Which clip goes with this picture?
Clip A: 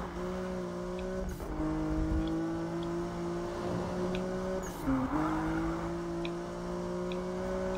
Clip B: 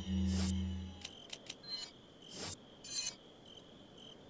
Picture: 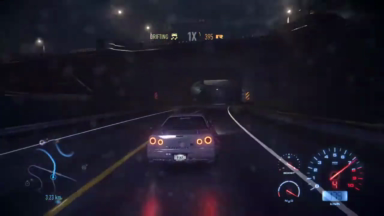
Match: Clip A